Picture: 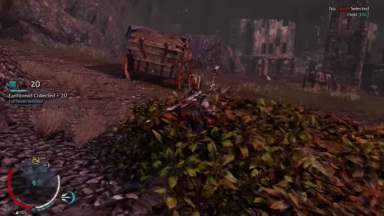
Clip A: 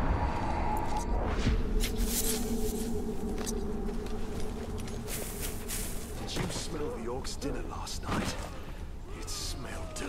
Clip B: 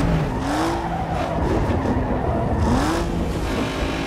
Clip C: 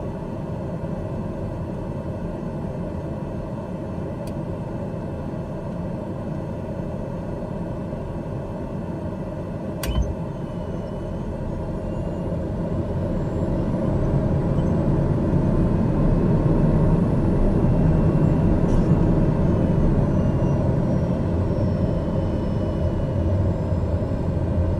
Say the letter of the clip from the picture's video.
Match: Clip A